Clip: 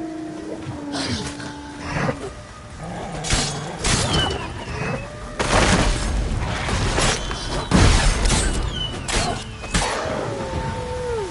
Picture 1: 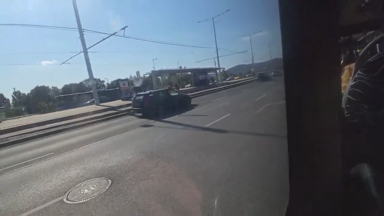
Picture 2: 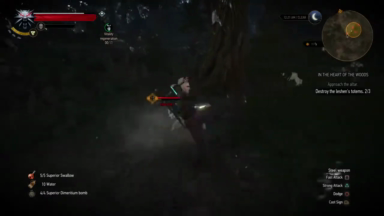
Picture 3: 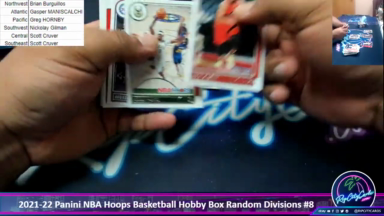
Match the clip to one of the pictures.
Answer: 2